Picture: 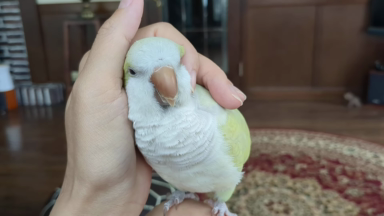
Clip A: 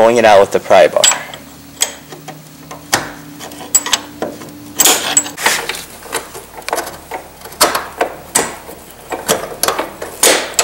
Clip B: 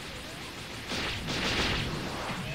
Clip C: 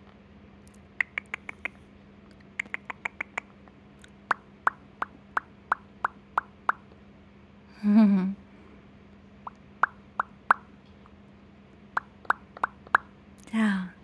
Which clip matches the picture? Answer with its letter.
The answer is C